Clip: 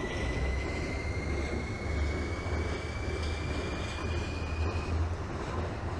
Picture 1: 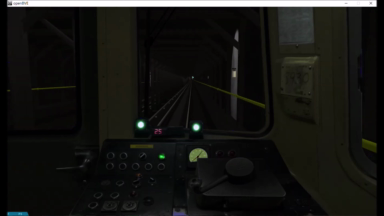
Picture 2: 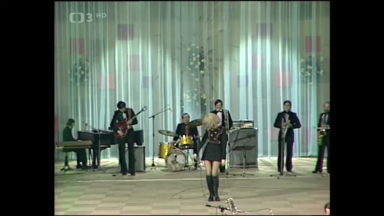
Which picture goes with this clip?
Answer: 1